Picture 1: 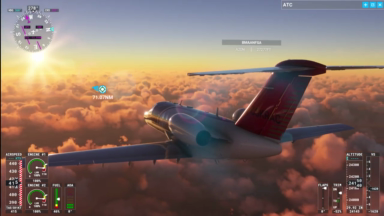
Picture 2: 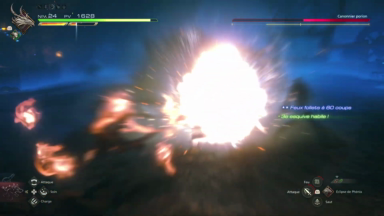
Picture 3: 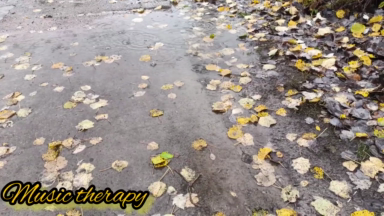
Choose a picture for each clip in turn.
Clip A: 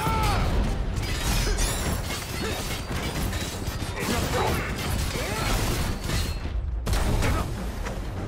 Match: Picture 2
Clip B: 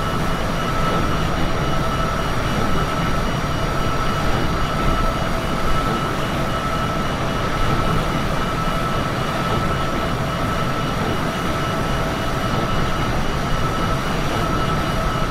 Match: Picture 1